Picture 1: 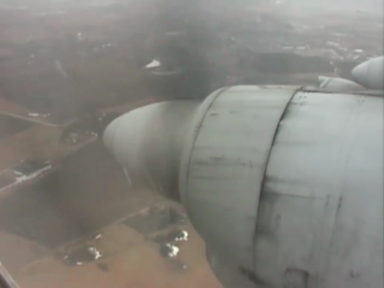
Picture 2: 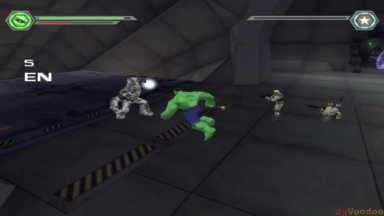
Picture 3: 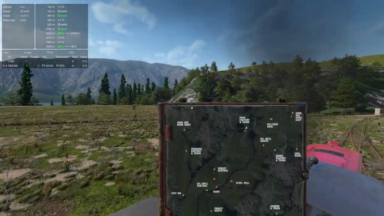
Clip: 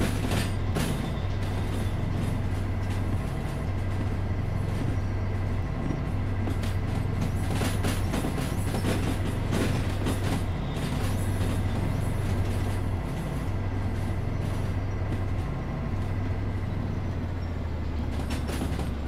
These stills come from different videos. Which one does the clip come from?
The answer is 3